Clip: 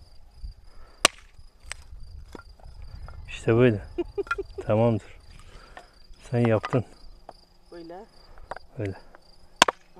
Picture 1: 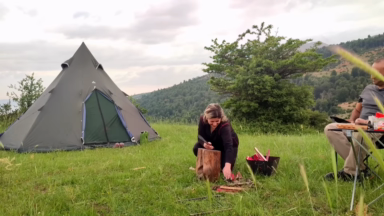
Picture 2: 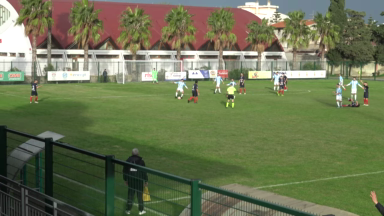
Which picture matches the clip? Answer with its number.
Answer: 1